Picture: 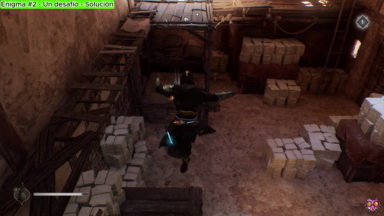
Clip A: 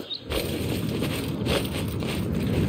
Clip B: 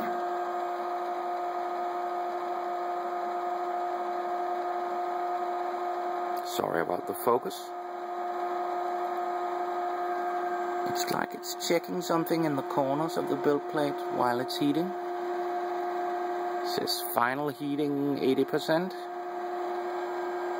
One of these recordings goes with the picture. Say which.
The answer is A